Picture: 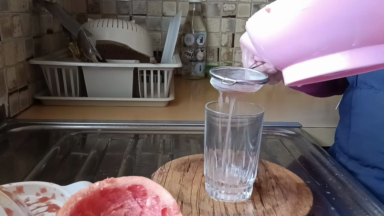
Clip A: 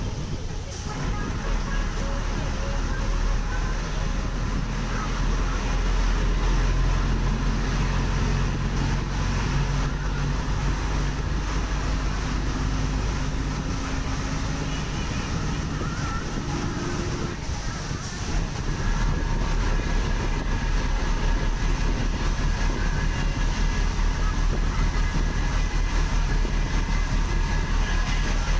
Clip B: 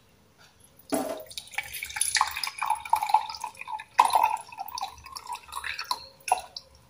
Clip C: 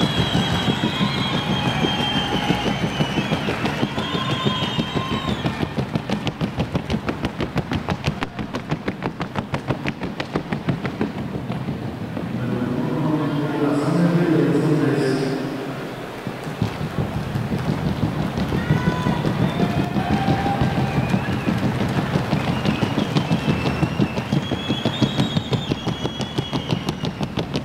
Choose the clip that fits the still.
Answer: B